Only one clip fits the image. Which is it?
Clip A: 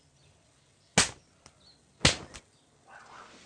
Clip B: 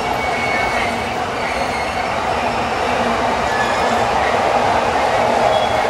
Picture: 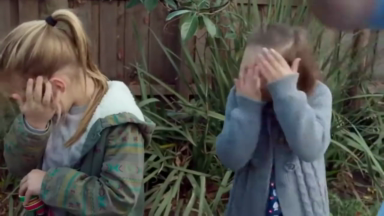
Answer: A